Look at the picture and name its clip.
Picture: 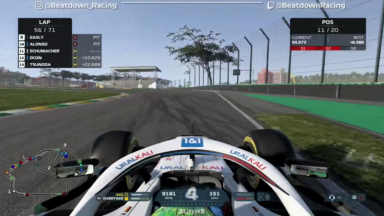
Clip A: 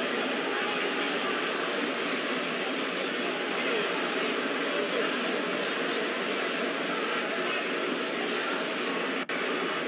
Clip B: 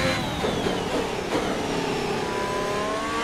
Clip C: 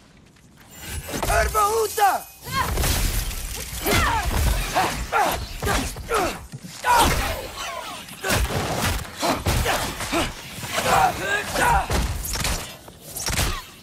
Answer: B